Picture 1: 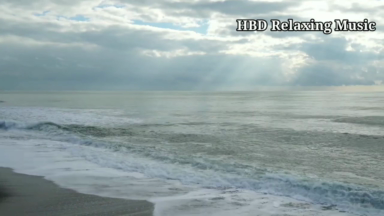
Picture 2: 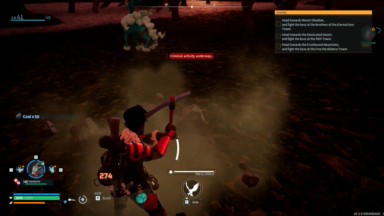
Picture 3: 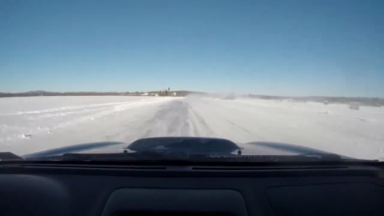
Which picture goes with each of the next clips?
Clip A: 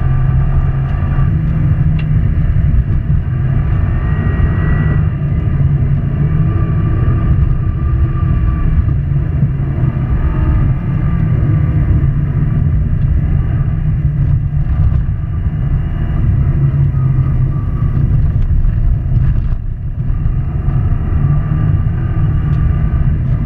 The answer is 3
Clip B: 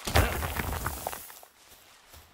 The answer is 2